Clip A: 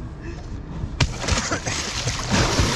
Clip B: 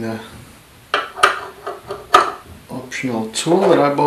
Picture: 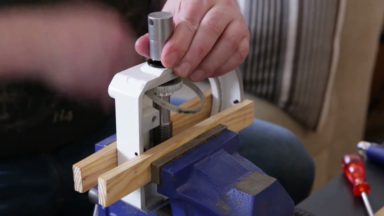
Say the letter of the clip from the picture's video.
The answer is B